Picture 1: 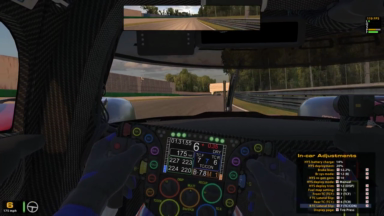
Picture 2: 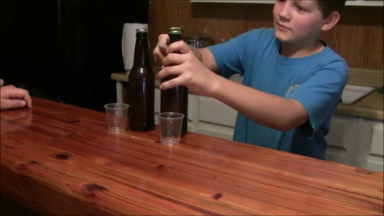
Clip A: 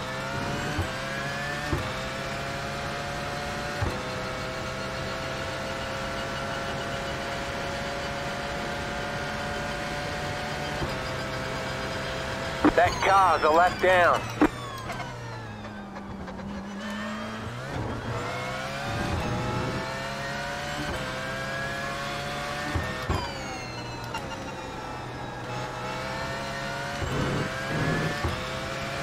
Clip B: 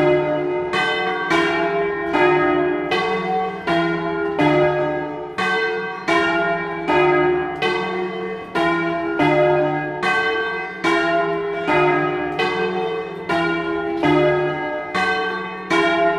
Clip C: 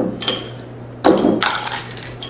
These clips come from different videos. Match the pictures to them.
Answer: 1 A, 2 C